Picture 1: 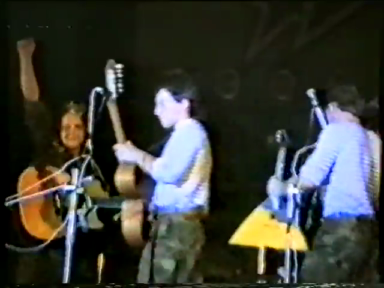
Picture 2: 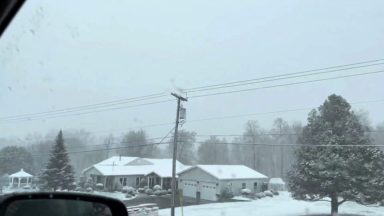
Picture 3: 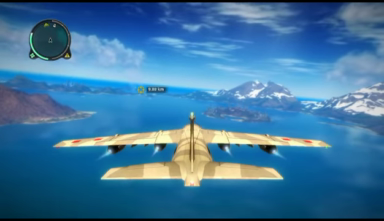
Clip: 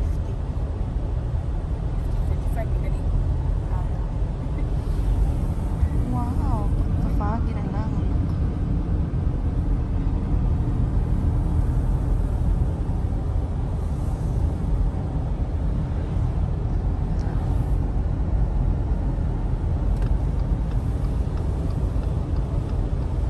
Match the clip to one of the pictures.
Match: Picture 2